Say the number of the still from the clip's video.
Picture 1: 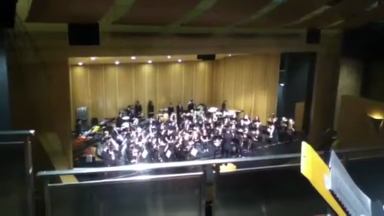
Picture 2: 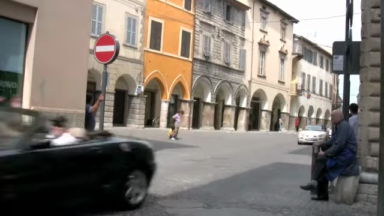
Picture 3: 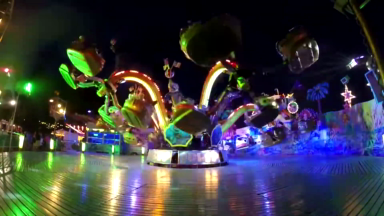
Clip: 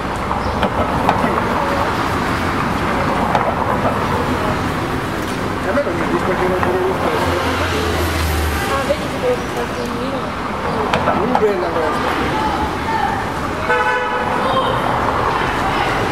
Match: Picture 2